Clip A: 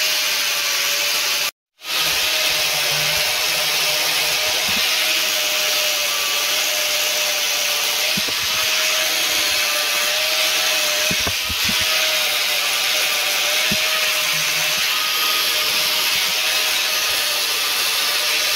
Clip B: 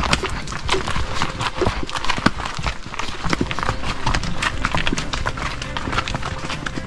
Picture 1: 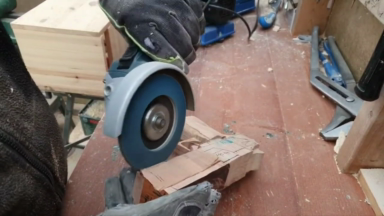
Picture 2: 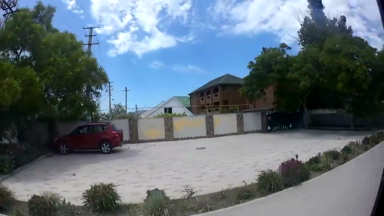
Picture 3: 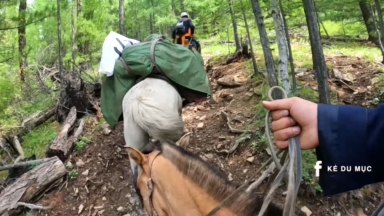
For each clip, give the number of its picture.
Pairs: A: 1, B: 3